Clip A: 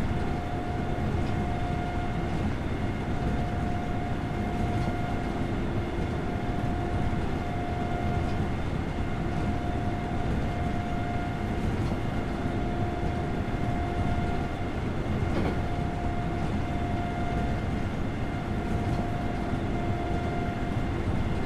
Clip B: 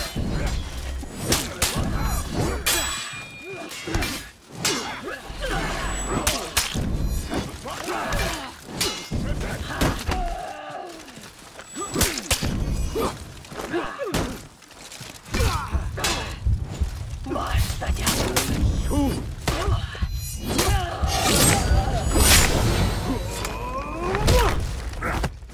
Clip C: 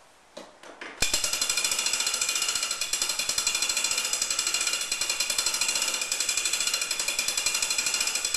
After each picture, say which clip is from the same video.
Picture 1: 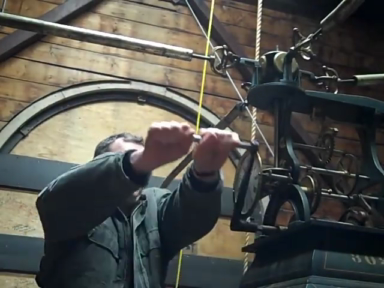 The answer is C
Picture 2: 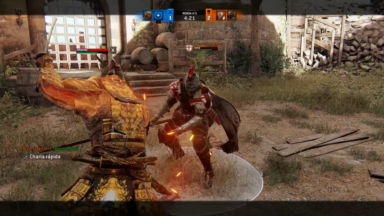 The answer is B